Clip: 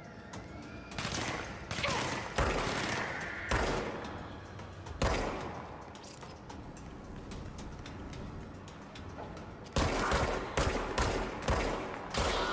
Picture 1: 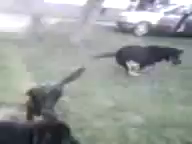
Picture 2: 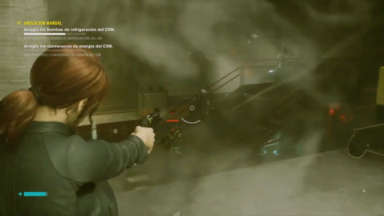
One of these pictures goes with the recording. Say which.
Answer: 2